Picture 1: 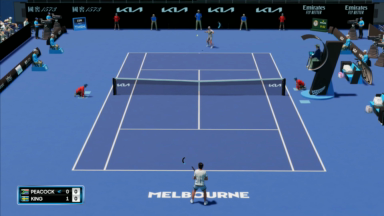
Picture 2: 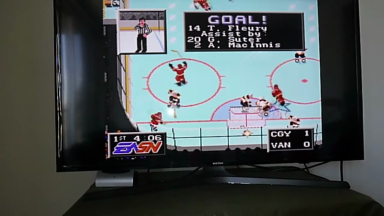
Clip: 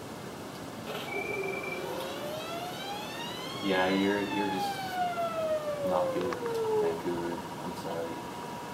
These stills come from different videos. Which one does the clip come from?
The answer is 2